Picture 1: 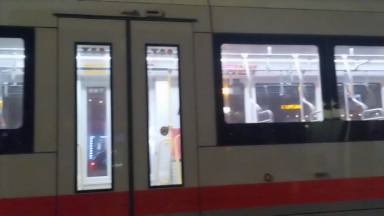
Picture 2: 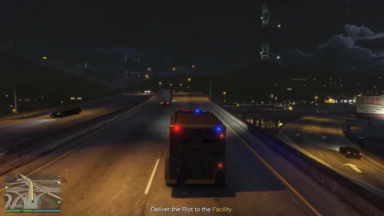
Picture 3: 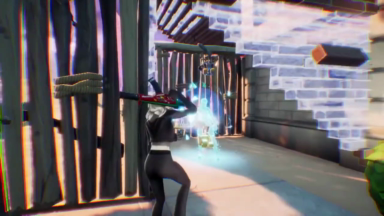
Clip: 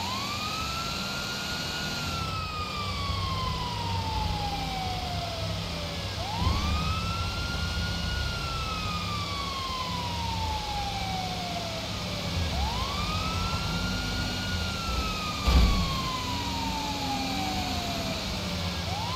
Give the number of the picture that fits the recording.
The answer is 2